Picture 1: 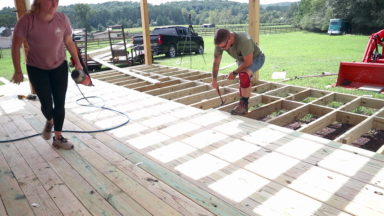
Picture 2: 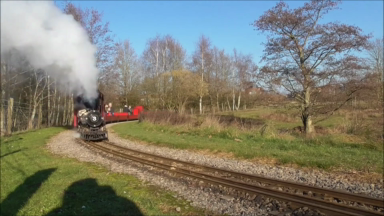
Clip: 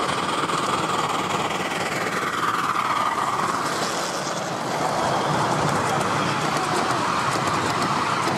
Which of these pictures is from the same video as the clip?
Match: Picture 2